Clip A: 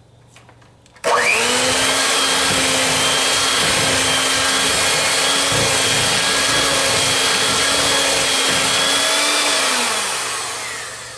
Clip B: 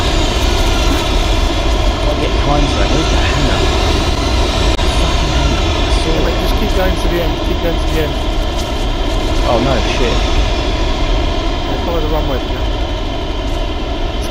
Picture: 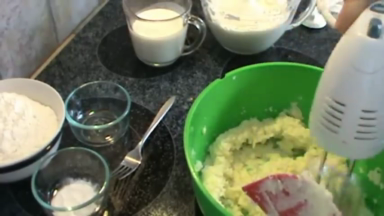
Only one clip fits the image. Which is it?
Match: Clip A